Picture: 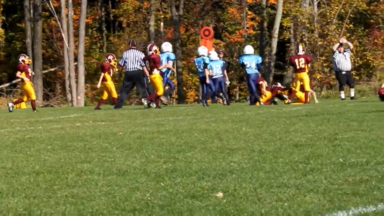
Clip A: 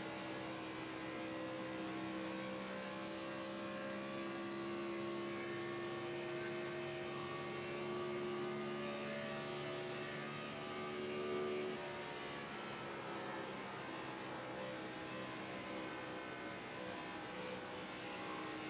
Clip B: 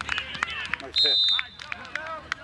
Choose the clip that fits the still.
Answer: B